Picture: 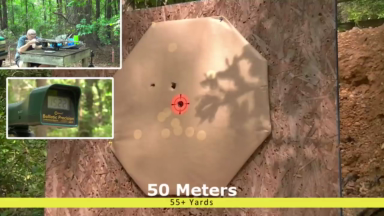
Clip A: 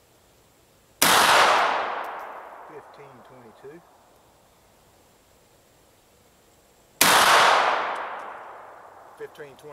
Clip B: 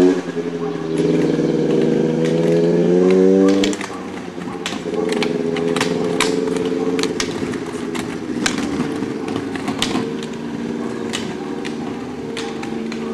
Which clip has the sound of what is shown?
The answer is A